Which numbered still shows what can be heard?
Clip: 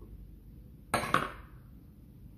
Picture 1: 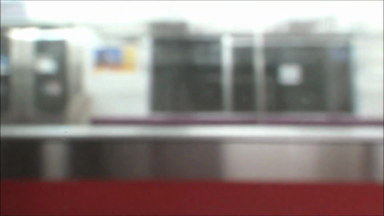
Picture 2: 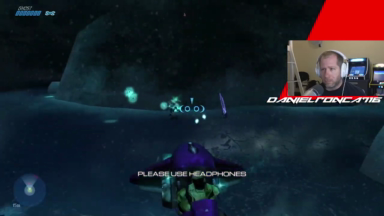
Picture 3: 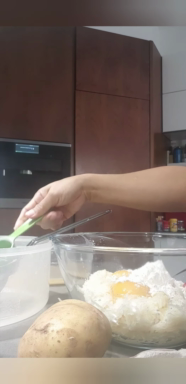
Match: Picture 3